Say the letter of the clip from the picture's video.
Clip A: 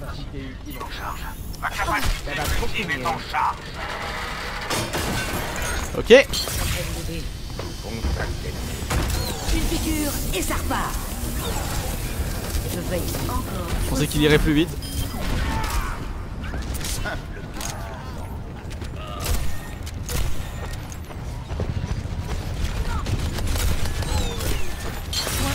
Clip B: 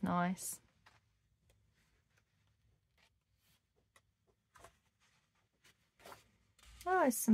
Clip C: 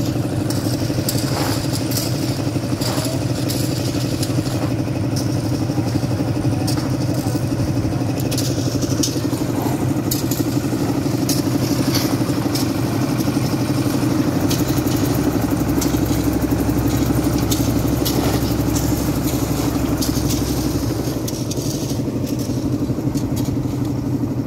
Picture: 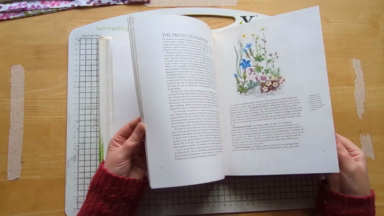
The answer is B